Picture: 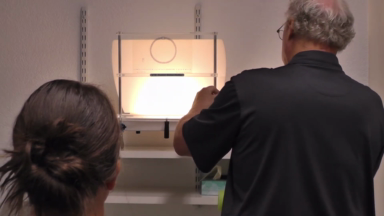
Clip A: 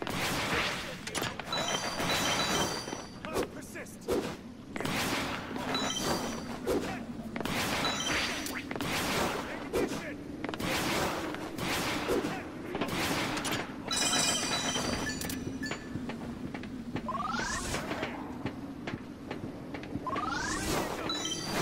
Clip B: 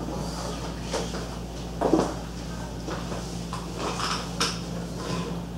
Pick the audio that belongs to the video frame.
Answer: B